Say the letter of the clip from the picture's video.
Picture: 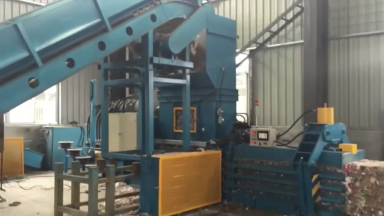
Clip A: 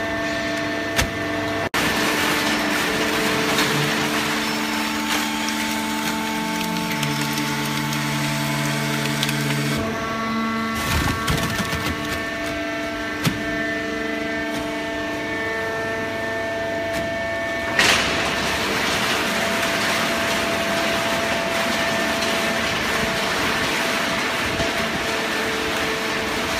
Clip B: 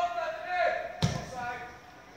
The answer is A